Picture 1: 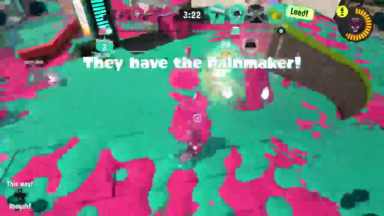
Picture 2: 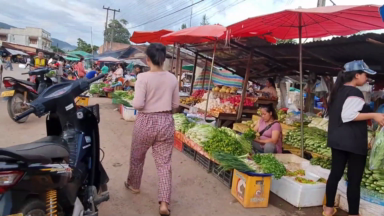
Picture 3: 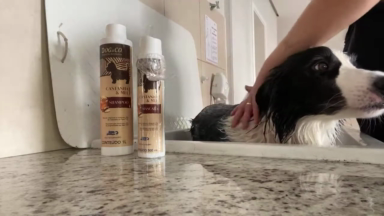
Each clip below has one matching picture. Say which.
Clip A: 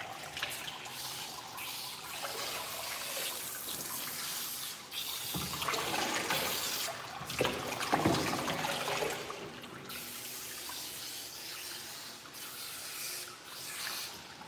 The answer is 3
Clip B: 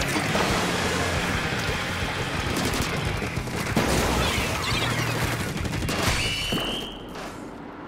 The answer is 1